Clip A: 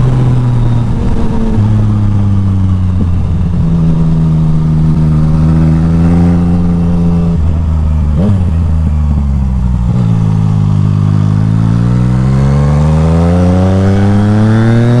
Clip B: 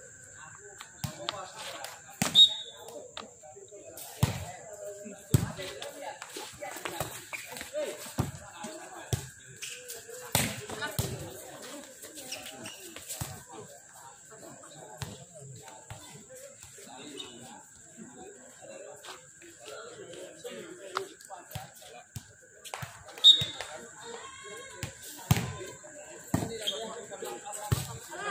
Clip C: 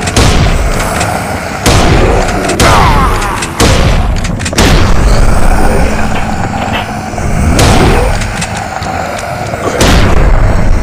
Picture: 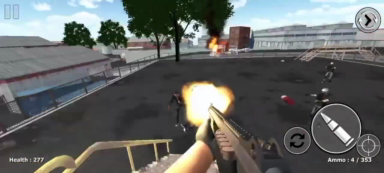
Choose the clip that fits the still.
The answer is C